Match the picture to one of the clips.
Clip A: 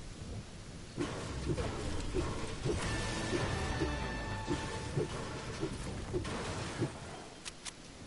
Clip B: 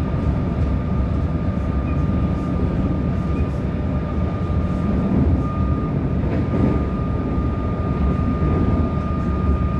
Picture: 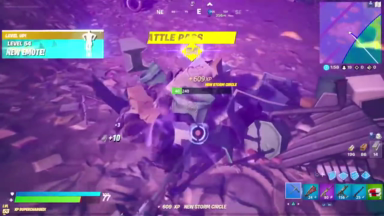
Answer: A